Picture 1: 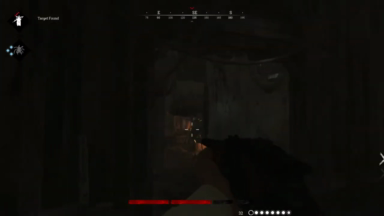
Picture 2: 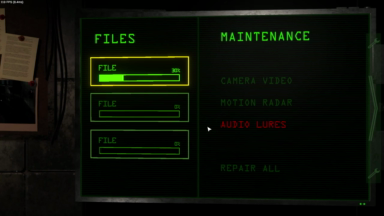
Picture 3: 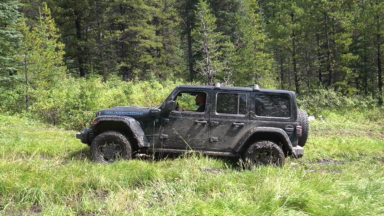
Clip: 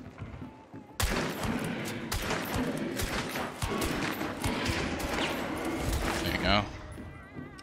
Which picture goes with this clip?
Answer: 1